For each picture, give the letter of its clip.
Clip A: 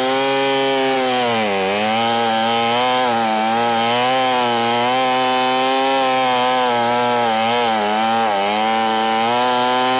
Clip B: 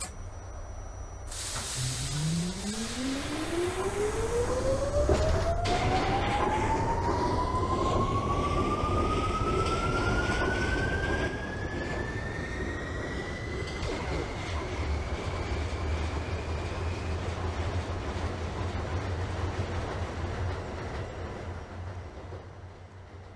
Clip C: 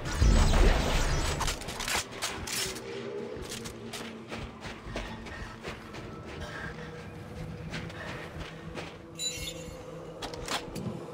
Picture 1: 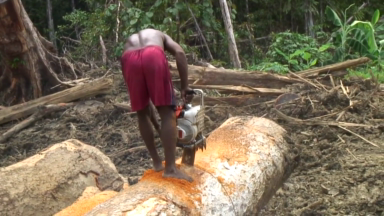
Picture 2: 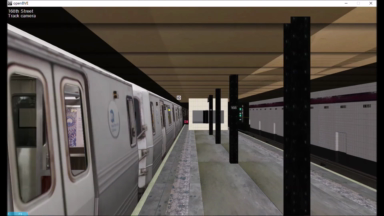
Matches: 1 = A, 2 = B